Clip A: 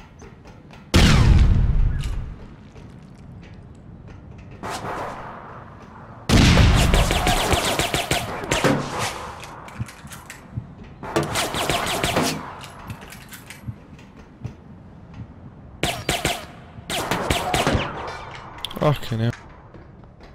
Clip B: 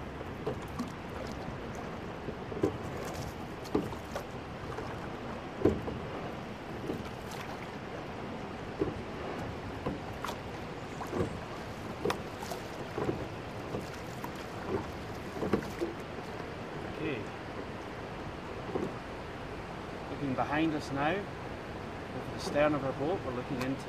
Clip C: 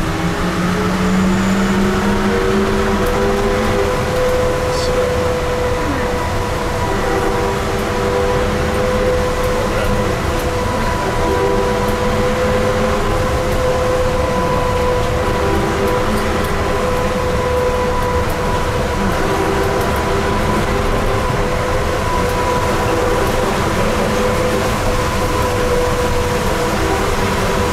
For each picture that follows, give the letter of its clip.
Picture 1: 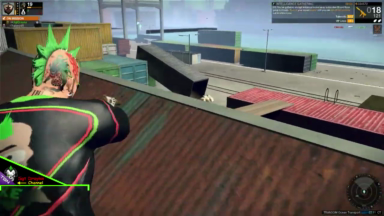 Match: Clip A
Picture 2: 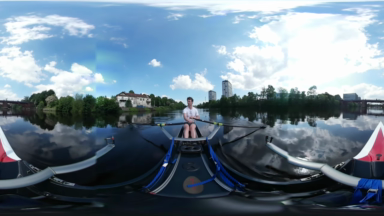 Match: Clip B